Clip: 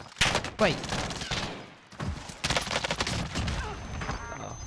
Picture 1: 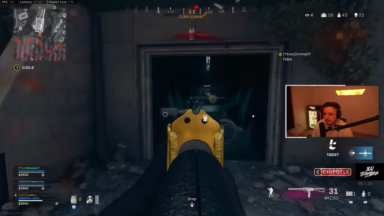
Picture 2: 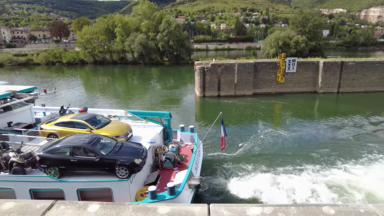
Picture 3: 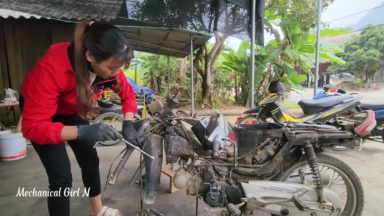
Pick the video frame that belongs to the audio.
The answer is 1